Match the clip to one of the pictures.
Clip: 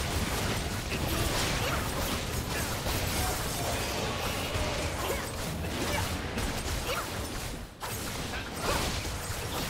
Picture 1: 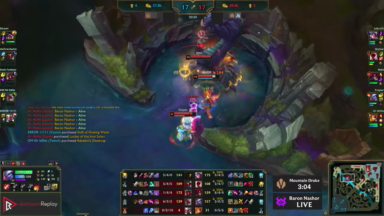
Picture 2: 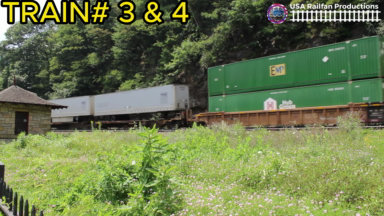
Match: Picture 1